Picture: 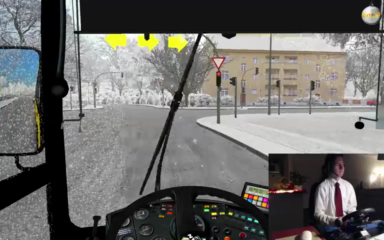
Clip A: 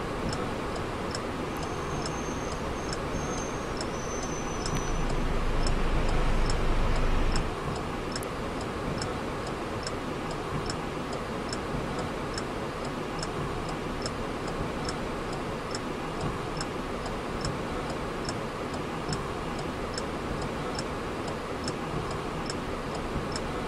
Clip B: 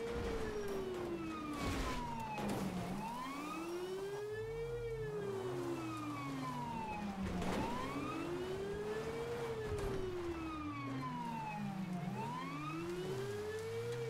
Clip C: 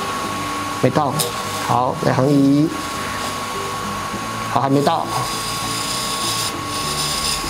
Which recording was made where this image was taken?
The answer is A